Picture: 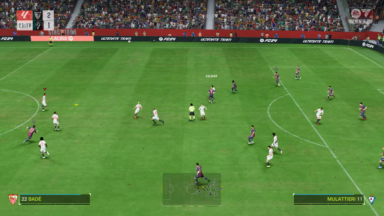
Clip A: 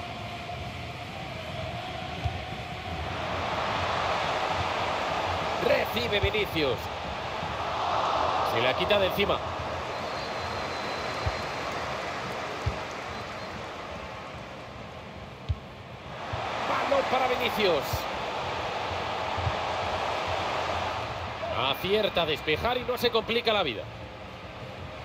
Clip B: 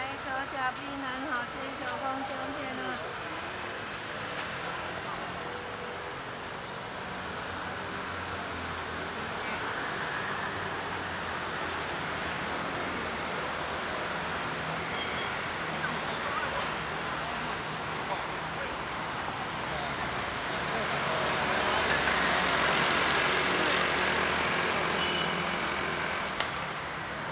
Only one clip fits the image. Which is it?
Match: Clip A